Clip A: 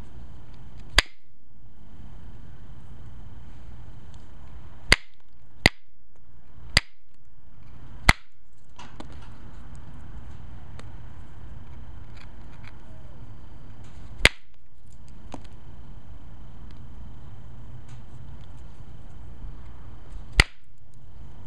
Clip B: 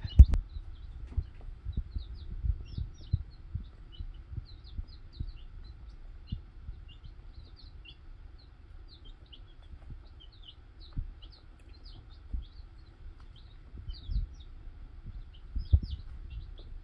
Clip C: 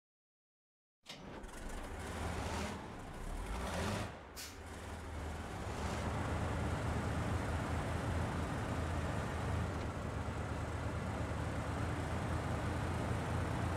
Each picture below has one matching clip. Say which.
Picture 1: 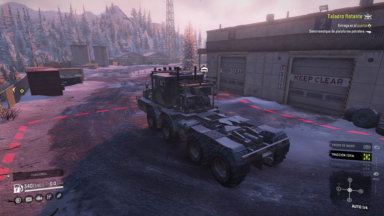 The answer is C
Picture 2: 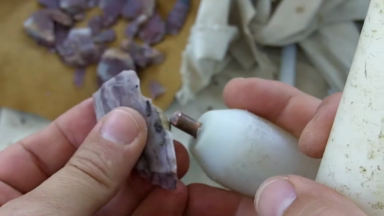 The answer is A